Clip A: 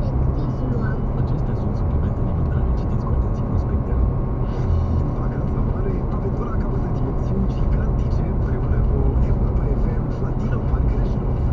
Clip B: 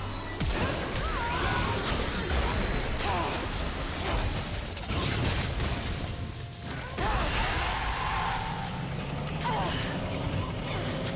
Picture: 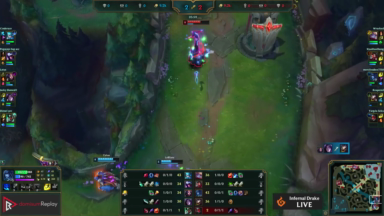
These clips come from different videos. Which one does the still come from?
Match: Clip B